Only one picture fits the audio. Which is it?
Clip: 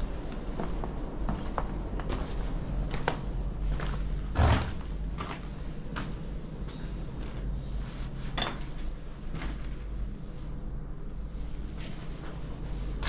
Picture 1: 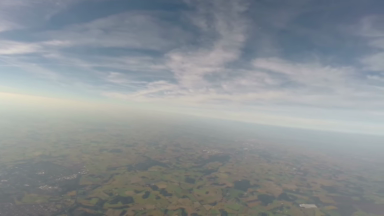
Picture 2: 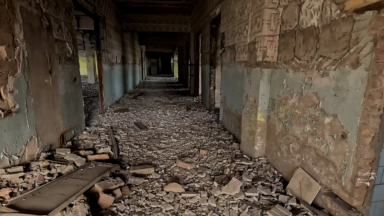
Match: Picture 2